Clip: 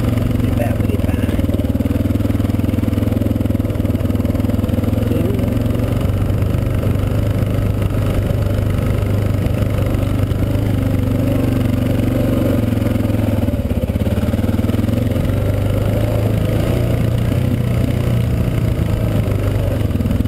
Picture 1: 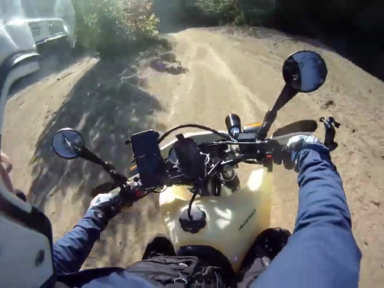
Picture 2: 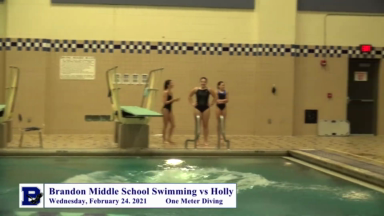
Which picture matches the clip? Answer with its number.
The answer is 1